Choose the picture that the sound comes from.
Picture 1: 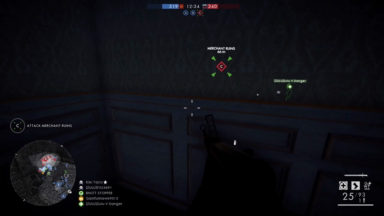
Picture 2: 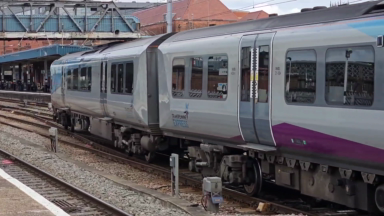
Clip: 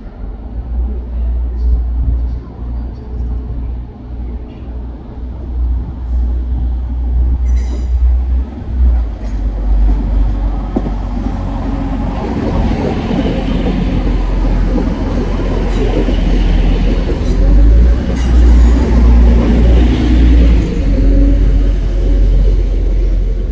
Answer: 2